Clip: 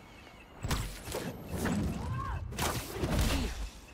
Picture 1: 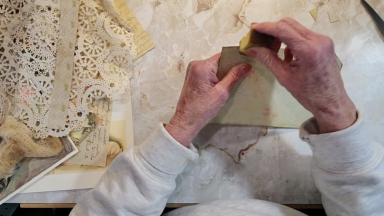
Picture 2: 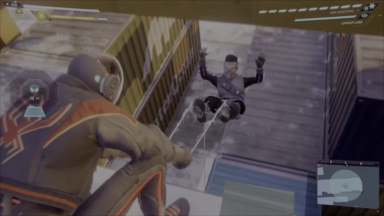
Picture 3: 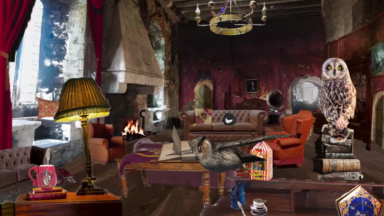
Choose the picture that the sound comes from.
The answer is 2